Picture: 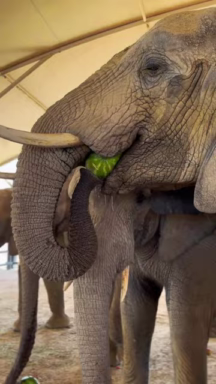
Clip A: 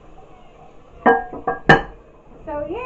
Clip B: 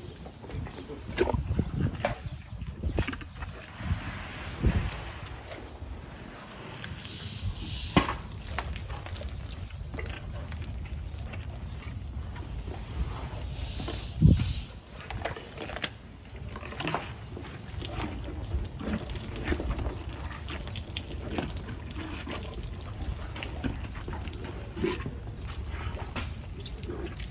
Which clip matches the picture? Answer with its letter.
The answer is B